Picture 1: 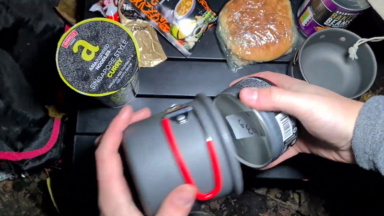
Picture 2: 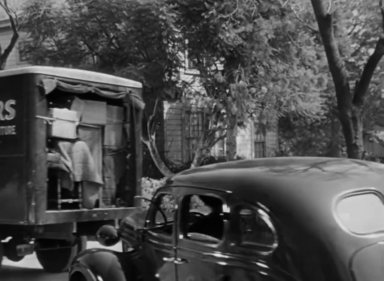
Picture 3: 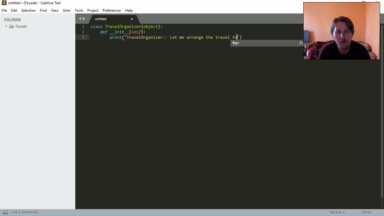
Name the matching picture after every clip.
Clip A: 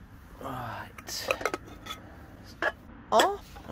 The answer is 1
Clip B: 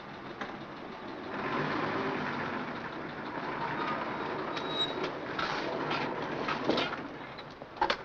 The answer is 2